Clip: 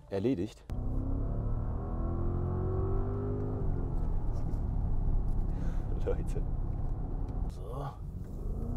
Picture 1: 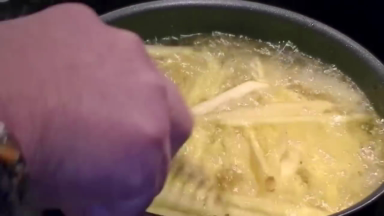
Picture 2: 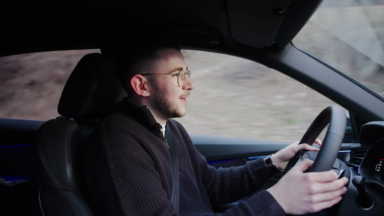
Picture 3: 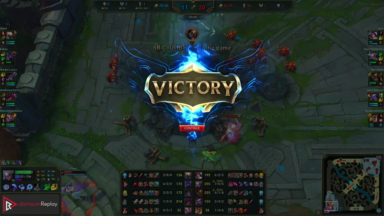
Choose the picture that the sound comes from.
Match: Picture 2